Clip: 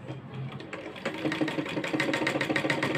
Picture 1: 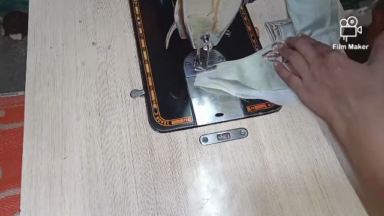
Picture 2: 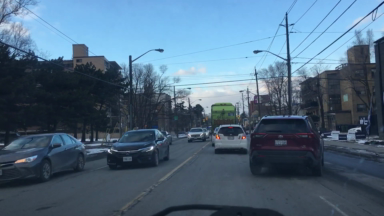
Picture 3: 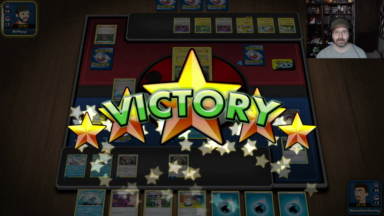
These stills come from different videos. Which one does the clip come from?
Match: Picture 1